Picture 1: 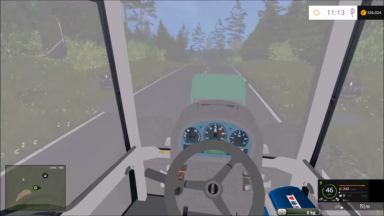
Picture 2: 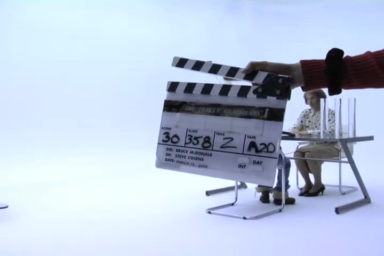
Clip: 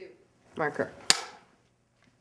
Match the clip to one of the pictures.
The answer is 2